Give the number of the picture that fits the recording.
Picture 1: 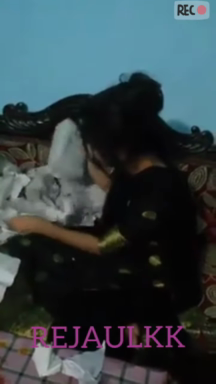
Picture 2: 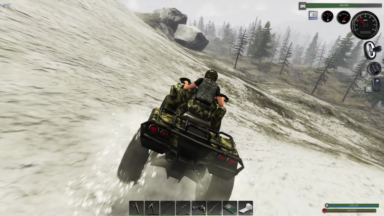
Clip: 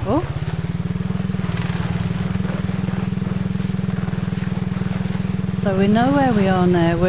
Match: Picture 2